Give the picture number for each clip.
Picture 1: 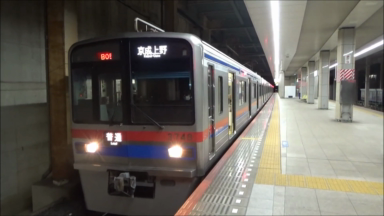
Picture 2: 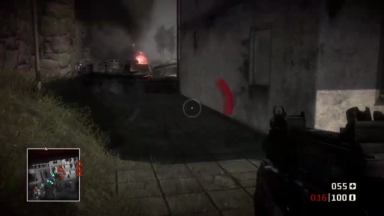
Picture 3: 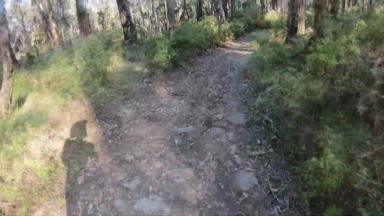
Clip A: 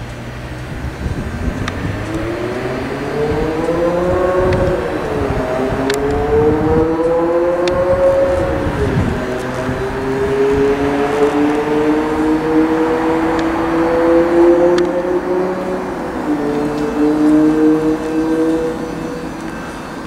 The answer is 1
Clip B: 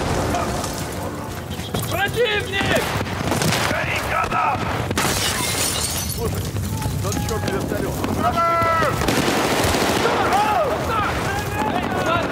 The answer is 2